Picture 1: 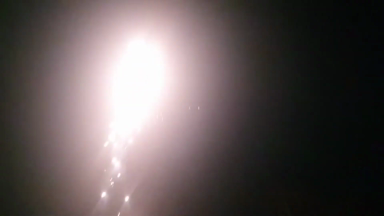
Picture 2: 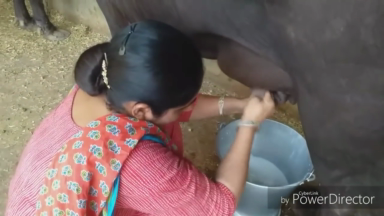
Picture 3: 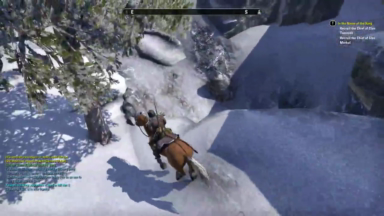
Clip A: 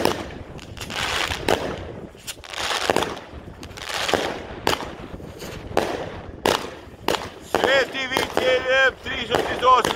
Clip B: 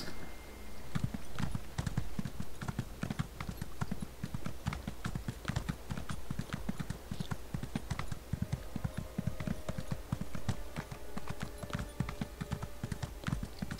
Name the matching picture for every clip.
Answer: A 1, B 3